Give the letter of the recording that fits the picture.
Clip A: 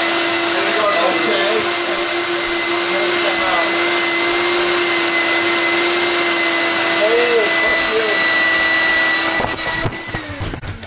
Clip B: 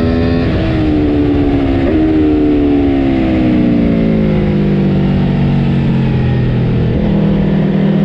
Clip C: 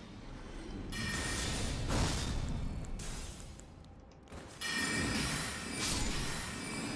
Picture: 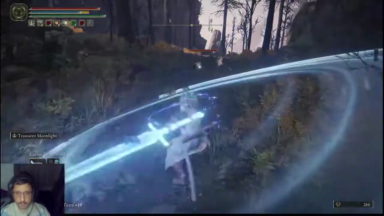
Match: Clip C